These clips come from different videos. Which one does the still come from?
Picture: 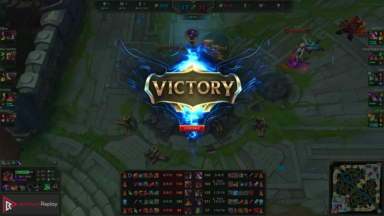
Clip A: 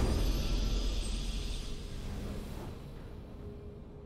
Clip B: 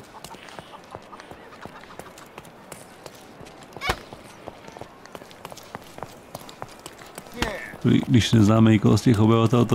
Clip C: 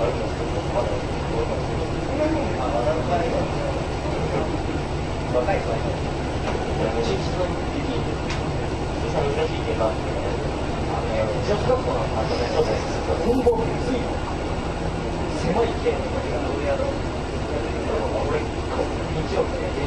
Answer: A